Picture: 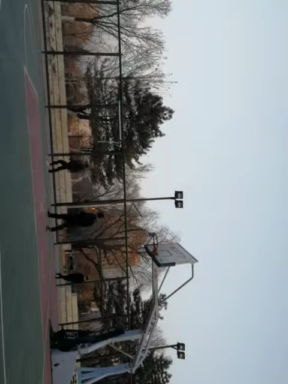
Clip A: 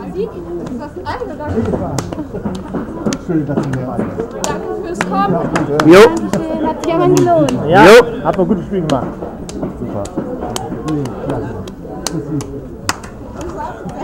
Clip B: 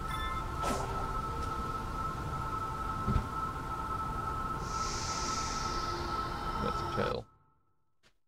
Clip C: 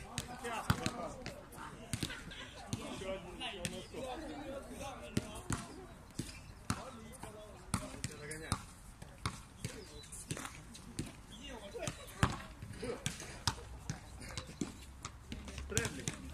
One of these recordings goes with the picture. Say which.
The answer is C